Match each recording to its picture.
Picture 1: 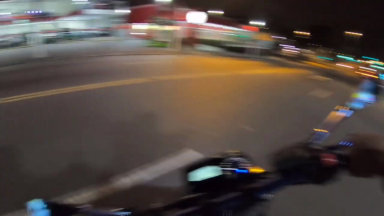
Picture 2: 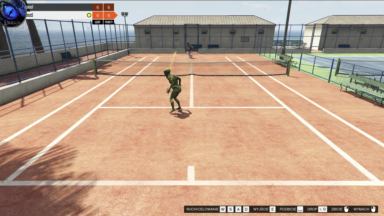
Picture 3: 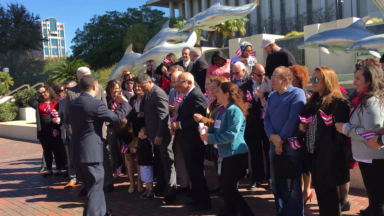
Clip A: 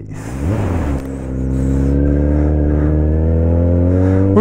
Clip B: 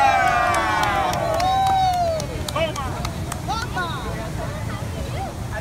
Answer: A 1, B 3